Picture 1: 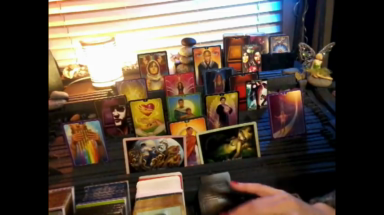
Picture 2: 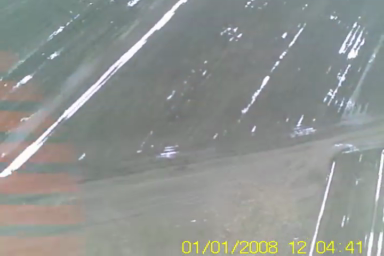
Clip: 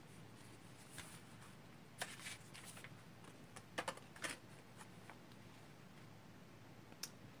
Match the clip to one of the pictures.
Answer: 1